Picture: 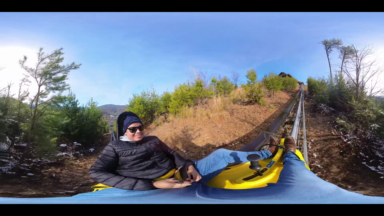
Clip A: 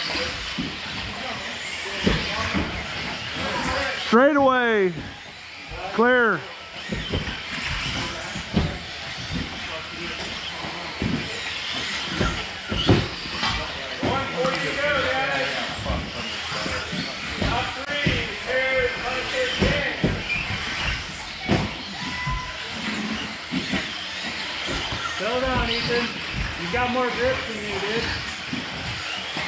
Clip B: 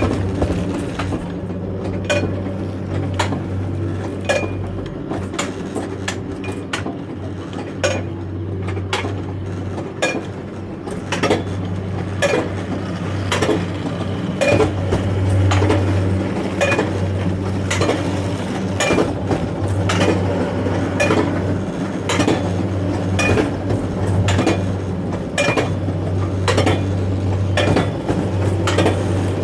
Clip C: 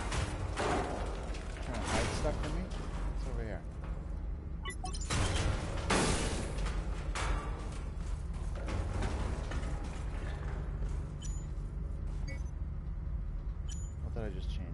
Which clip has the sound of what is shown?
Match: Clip B